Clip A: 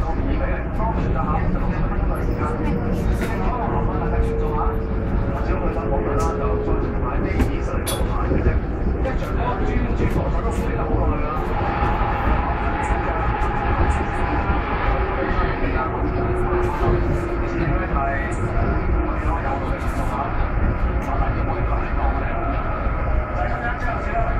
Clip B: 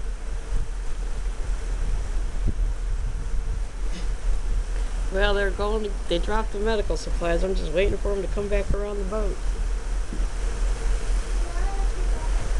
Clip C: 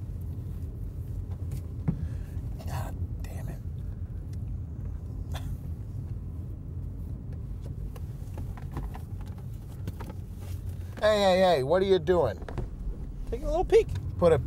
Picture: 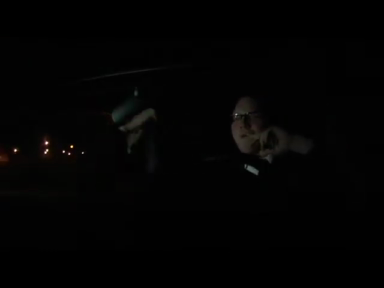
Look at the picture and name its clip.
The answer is C